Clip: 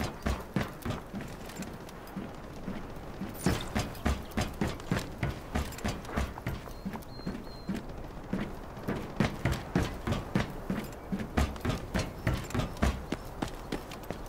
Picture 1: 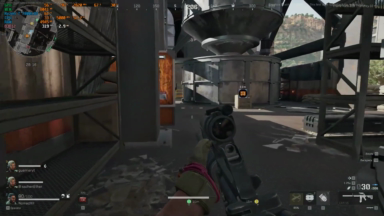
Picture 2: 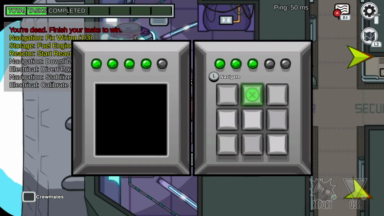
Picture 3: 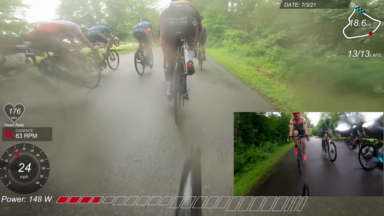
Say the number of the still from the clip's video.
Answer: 1